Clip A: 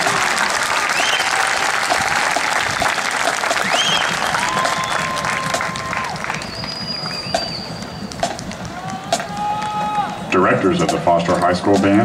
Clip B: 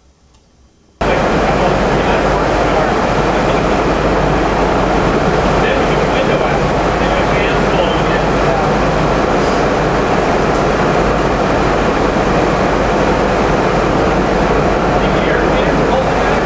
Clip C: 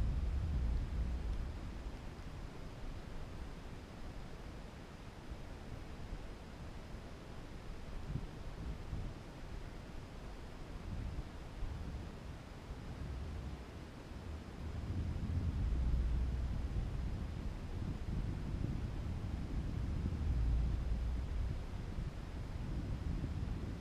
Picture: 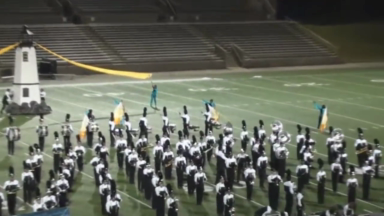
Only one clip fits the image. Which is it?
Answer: A